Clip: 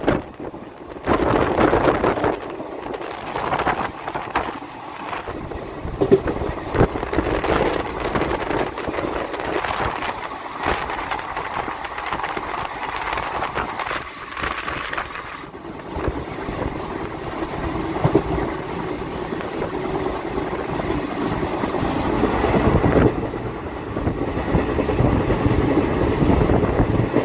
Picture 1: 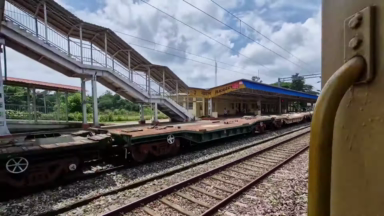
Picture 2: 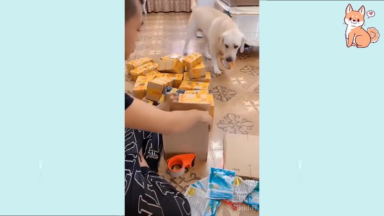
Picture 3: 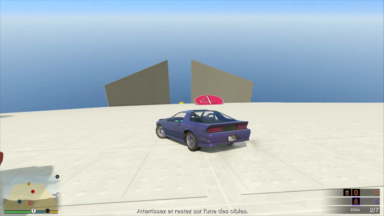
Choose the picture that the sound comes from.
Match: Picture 1